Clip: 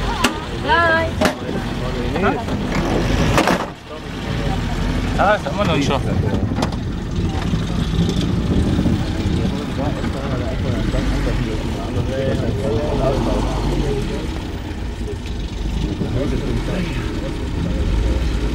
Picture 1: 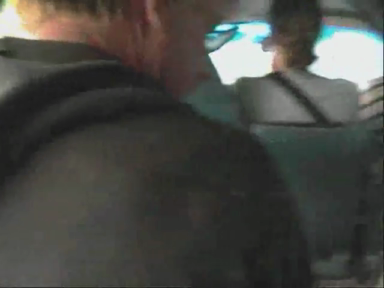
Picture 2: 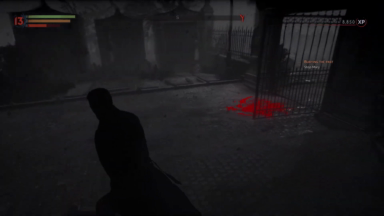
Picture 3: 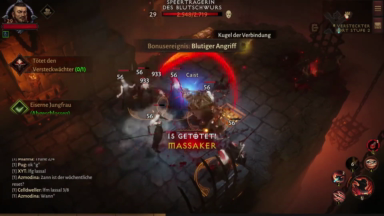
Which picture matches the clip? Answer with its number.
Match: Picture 1